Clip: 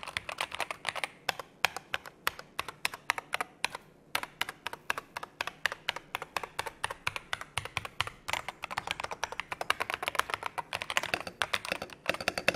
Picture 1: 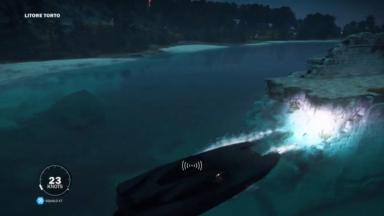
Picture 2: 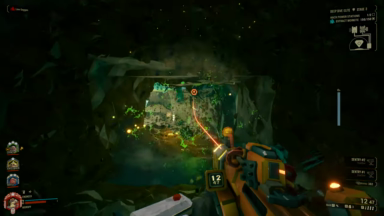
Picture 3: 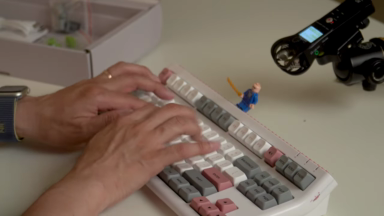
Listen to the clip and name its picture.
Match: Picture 3